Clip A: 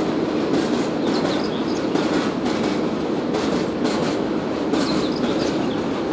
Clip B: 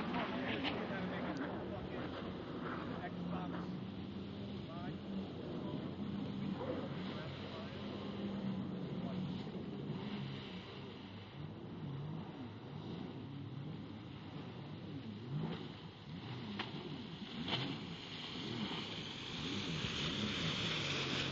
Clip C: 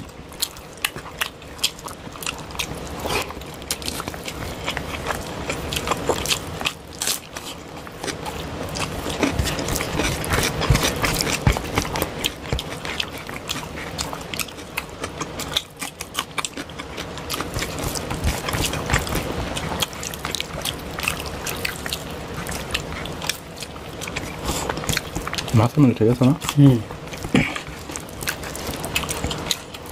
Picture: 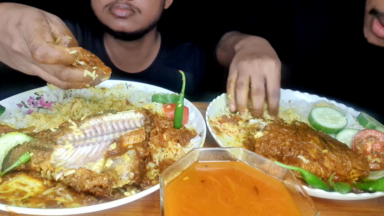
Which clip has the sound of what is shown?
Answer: C